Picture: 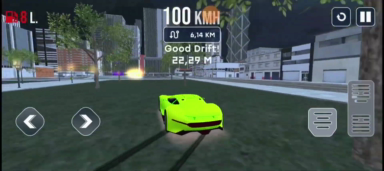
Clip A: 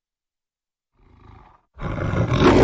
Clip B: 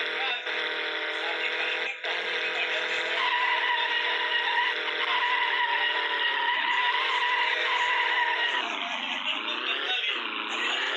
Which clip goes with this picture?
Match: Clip B